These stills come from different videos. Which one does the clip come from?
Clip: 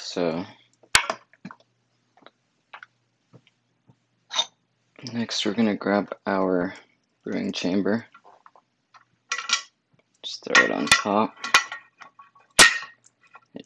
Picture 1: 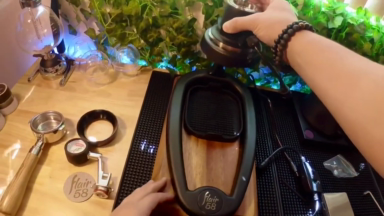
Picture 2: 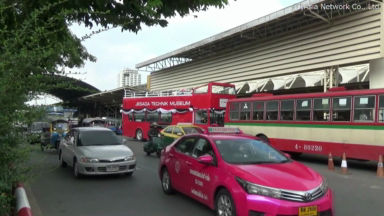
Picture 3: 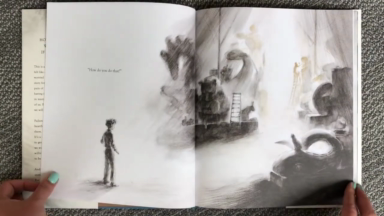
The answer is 1